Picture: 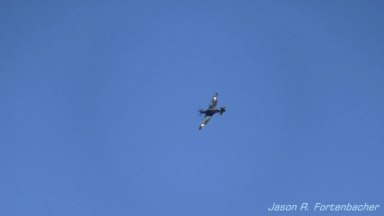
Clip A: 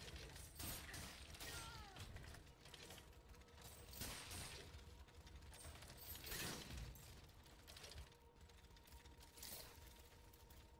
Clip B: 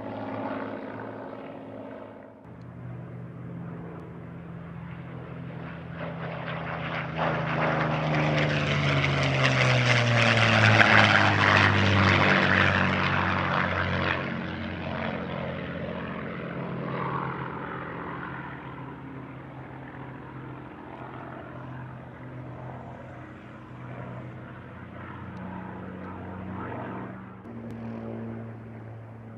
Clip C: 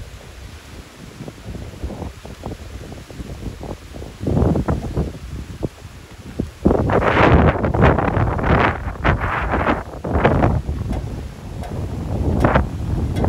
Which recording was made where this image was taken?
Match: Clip B